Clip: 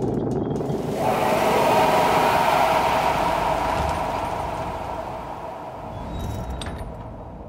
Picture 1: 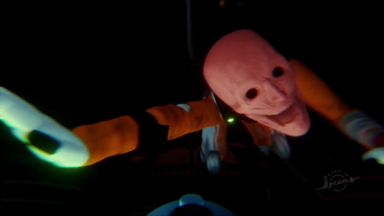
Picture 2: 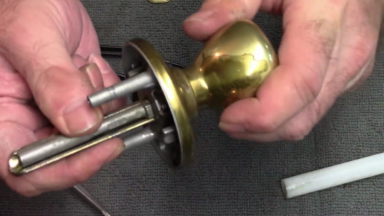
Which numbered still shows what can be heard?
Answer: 1